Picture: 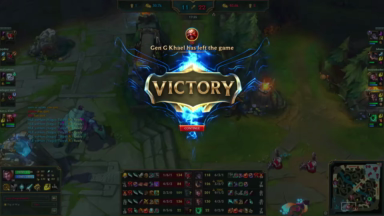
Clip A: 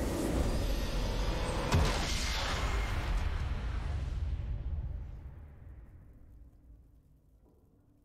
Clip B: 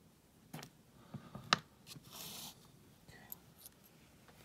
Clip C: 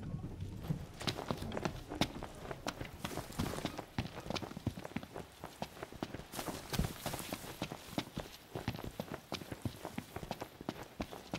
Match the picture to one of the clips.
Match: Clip A